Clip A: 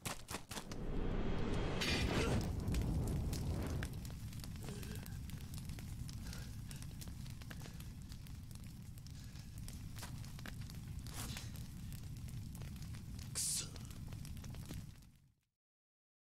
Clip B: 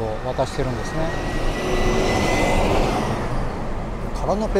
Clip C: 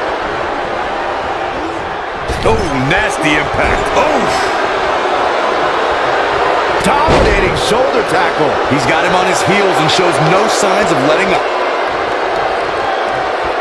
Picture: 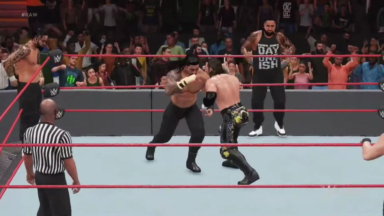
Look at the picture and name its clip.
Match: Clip C